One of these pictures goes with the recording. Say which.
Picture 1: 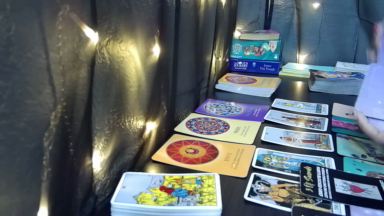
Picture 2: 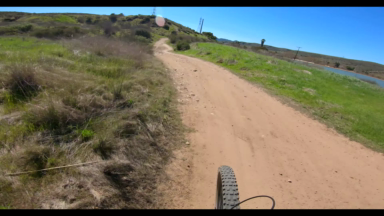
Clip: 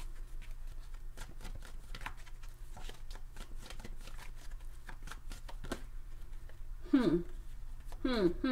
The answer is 1